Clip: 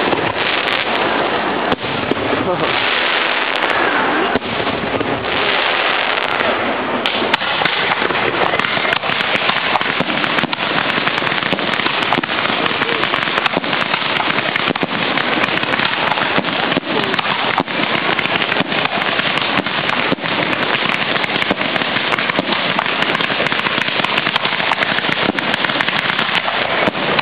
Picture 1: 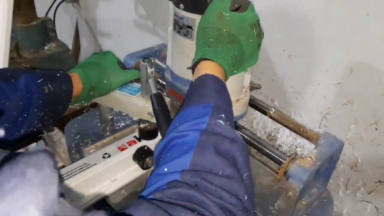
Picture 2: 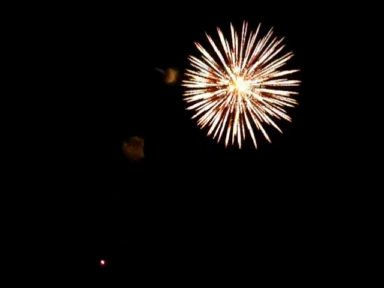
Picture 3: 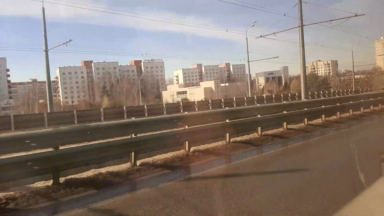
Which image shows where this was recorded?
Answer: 2